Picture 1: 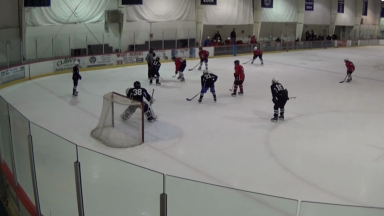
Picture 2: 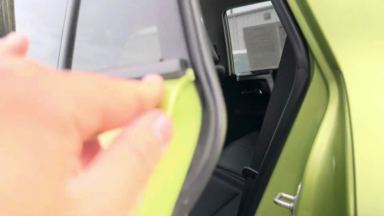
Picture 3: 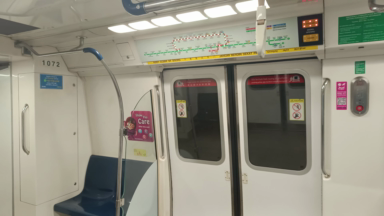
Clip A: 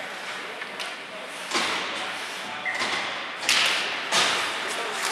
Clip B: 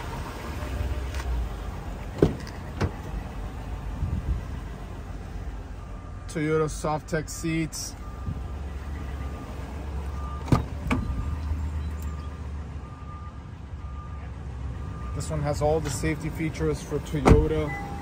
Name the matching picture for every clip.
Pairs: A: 1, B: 2